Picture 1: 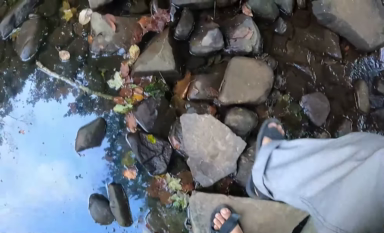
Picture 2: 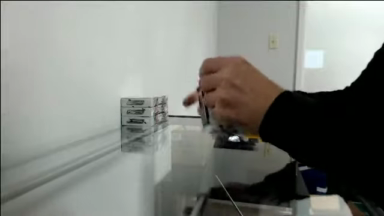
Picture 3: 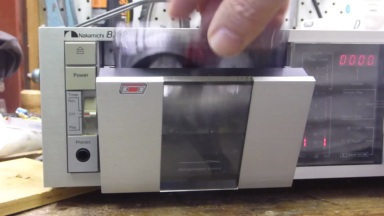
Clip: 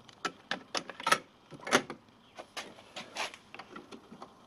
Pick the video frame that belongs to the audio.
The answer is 3